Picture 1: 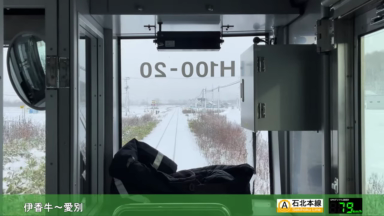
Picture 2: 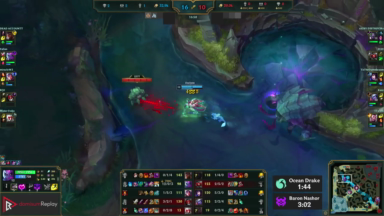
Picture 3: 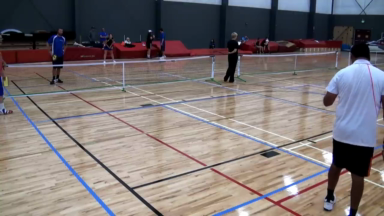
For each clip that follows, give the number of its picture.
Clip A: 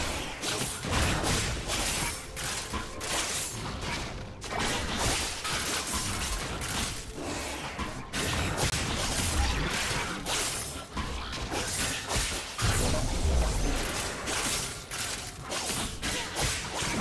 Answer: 2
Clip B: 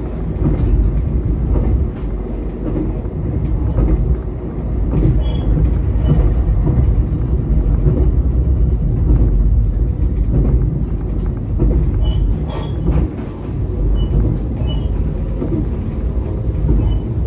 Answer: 1